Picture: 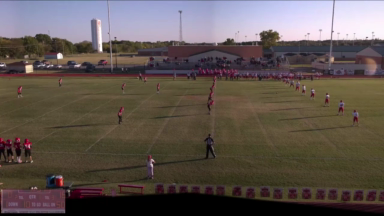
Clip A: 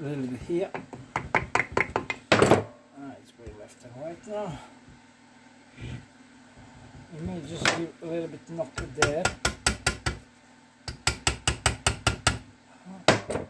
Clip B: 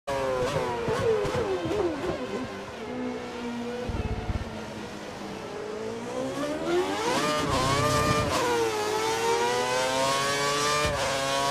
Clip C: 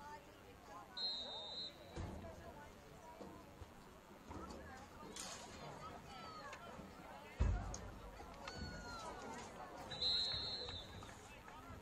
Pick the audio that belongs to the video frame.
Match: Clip C